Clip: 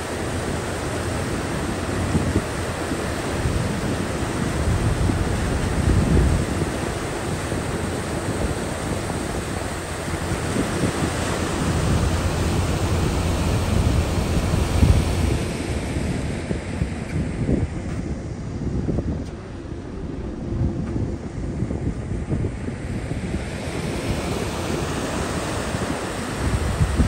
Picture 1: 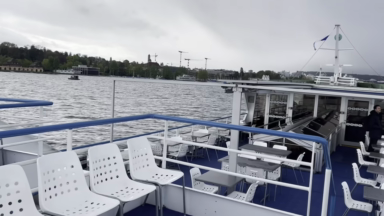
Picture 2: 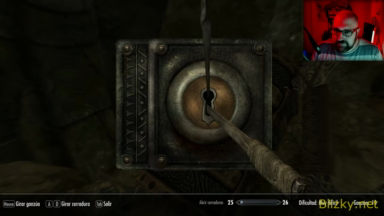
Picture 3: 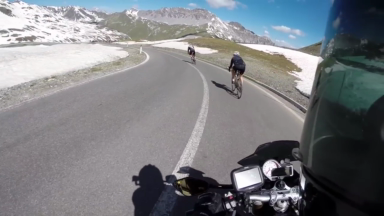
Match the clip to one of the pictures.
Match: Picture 1